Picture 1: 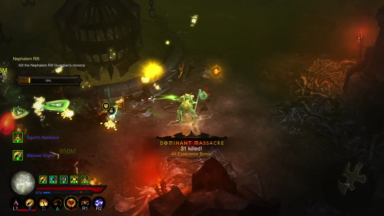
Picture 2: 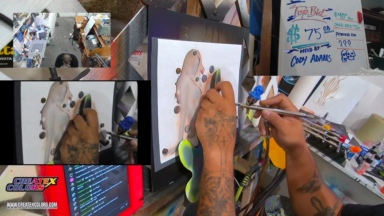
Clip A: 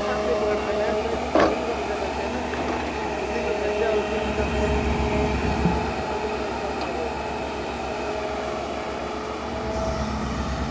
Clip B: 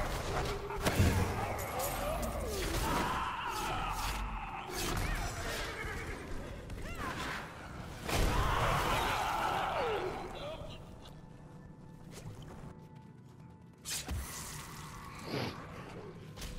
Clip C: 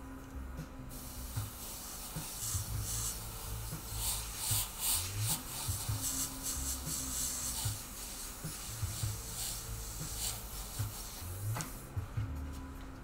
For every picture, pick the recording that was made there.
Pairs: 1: B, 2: C